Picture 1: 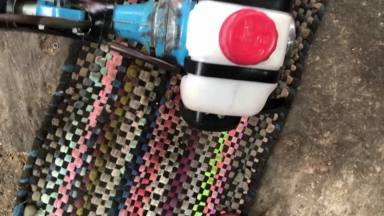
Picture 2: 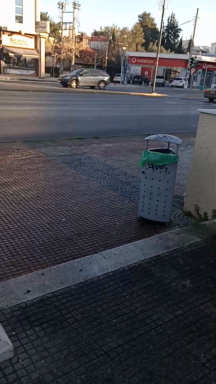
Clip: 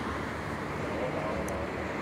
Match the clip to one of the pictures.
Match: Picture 2